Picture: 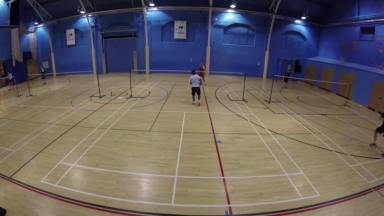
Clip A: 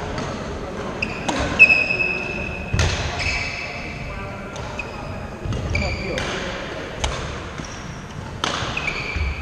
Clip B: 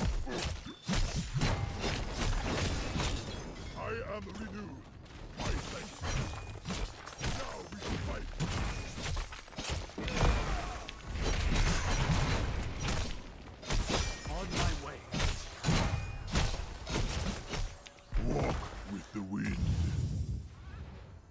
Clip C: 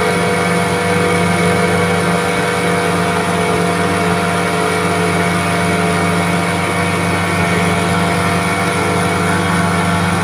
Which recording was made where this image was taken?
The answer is A